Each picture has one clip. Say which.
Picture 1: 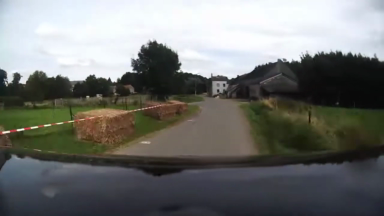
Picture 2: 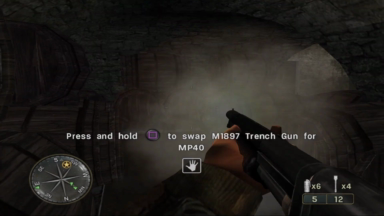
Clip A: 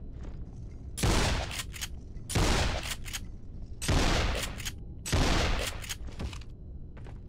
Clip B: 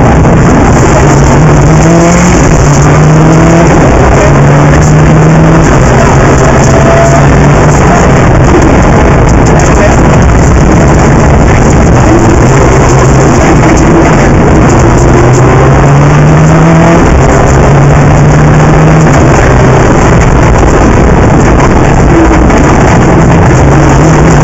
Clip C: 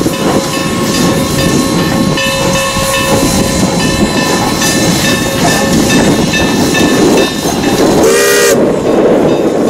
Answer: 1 B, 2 A